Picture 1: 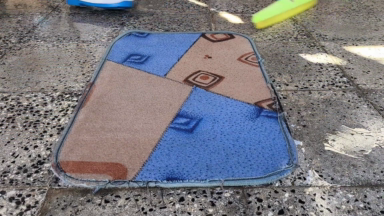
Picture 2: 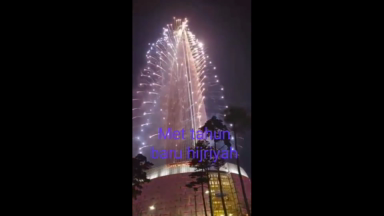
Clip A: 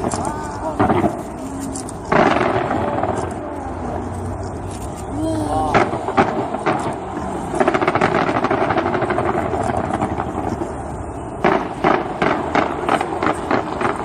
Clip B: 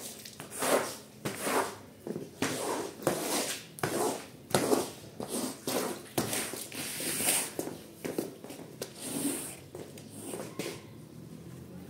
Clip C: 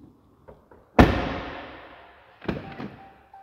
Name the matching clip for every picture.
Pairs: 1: B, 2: A